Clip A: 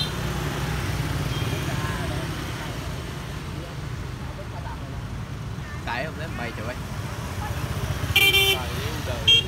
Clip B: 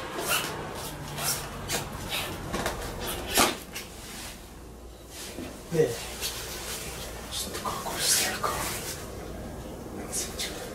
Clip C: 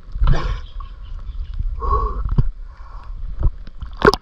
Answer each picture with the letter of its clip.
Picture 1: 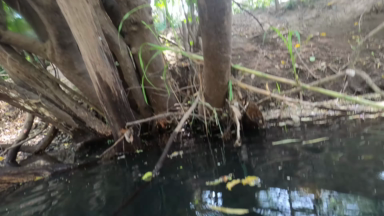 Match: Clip C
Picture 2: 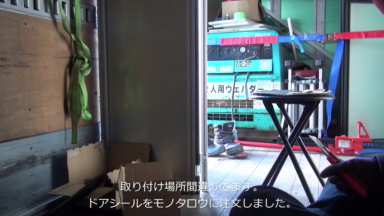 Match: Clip B